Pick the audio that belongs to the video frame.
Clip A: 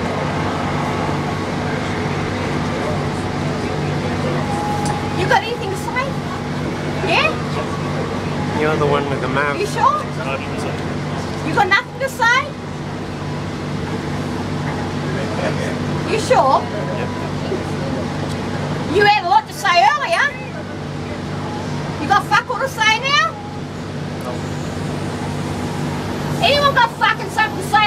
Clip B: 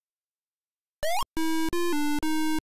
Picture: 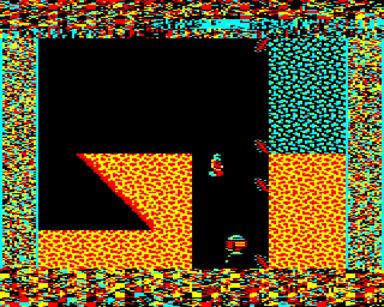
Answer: B